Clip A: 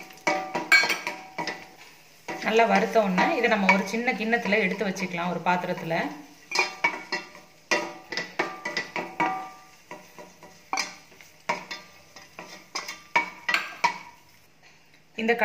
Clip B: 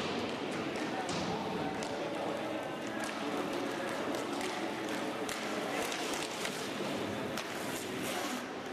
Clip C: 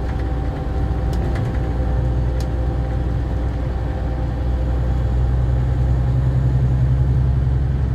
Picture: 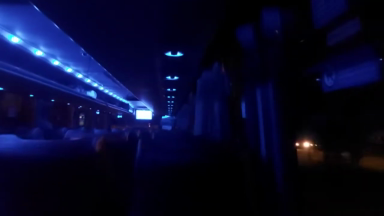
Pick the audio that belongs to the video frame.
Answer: C